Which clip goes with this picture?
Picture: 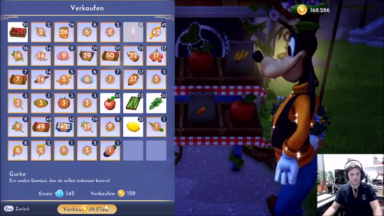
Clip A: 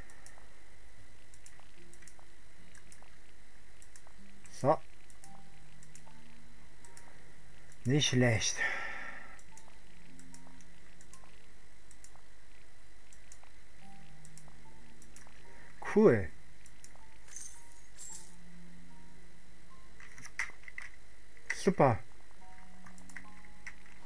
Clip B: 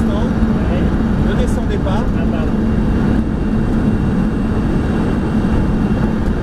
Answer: A